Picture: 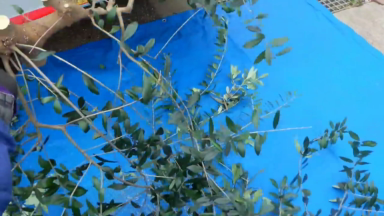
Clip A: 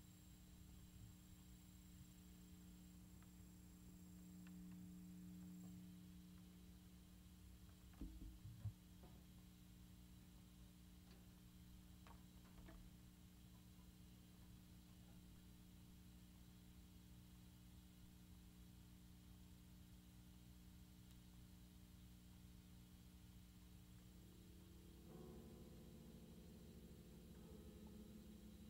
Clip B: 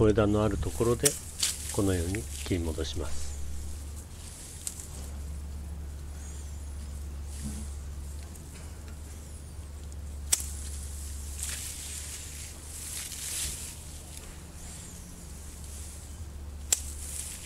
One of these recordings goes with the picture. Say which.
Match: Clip B